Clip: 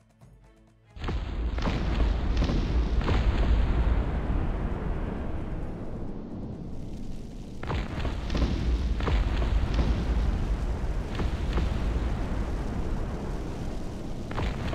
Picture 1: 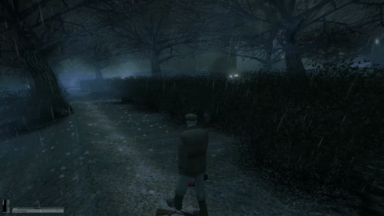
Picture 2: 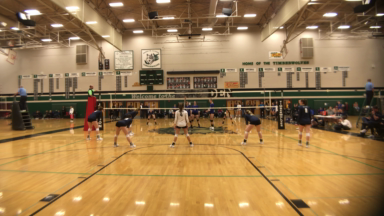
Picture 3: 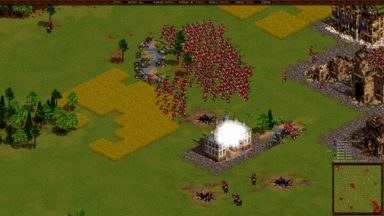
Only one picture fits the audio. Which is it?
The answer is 3